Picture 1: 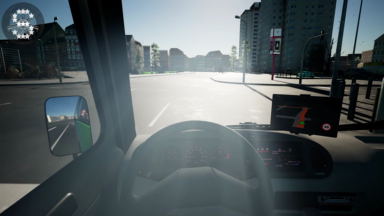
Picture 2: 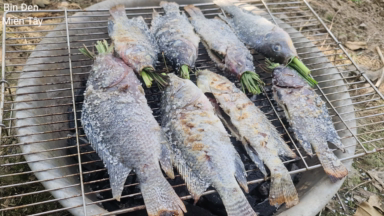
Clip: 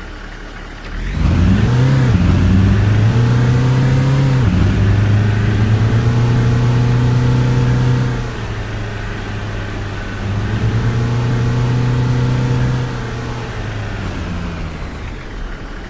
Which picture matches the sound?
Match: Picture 1